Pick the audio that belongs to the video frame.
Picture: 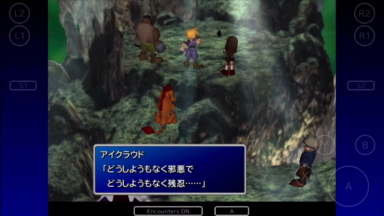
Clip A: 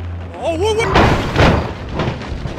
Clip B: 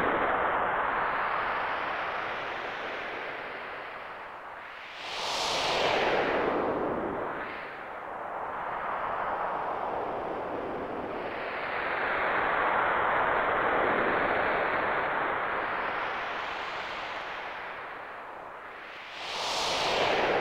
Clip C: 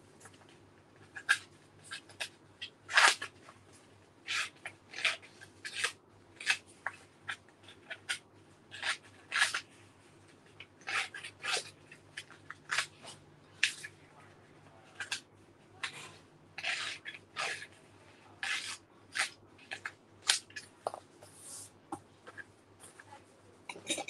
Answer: B